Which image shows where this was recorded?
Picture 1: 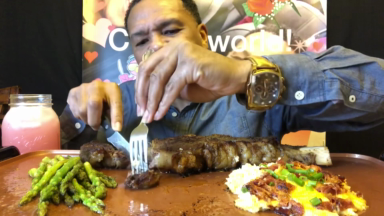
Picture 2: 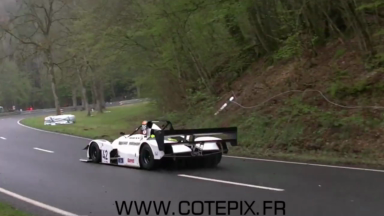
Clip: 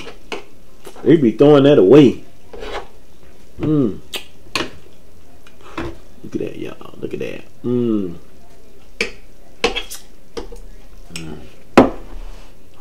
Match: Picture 1